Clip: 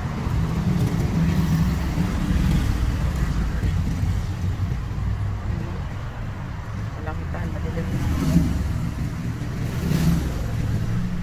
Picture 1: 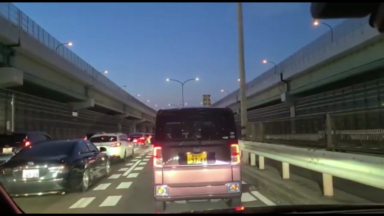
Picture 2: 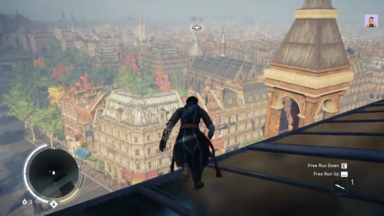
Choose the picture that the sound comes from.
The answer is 1